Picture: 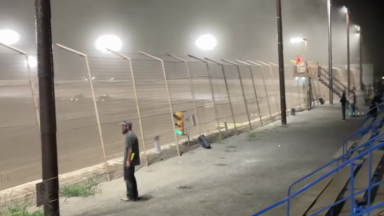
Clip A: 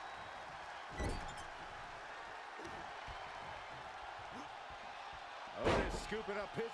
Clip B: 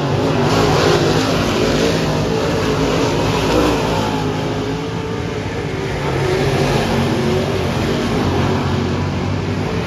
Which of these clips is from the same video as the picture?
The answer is B